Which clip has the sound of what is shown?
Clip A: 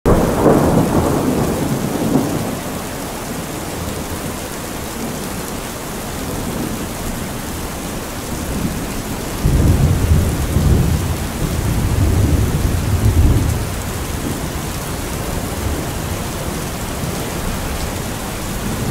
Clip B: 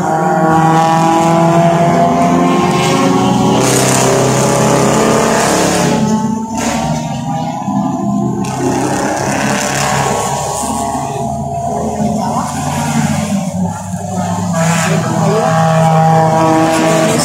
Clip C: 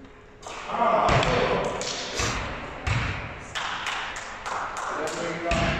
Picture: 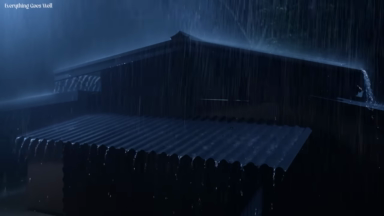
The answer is A